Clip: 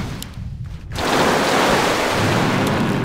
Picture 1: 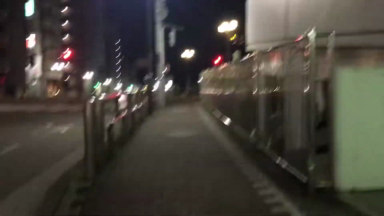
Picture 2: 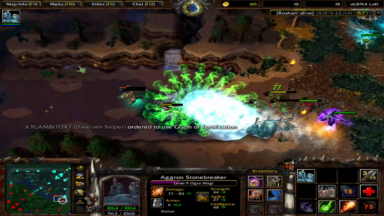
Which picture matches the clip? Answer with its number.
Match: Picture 2